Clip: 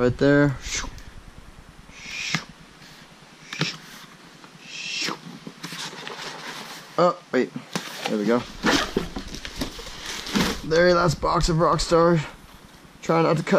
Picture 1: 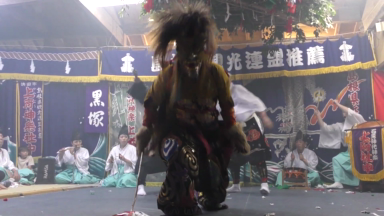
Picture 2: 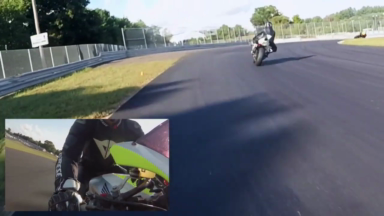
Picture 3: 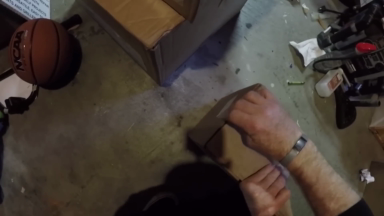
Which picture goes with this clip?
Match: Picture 3